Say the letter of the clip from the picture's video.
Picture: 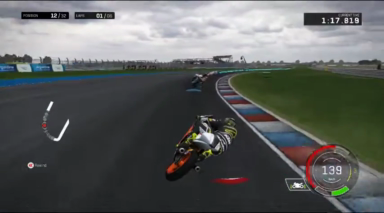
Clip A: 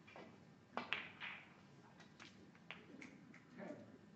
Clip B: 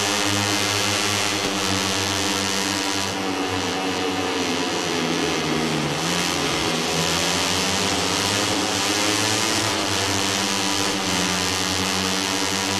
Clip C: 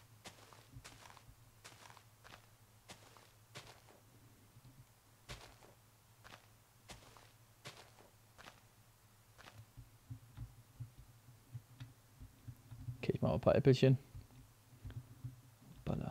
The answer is B